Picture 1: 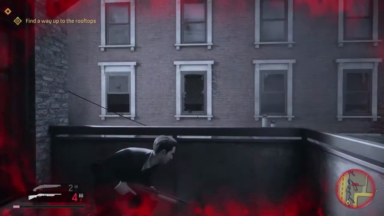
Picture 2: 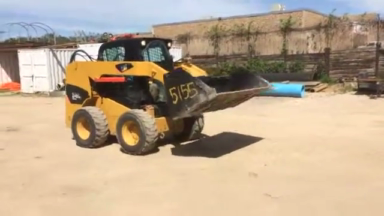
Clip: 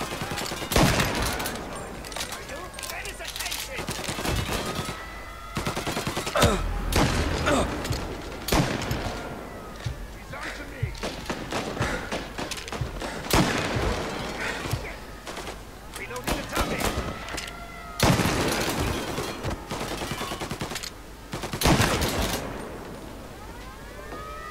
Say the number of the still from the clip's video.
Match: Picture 1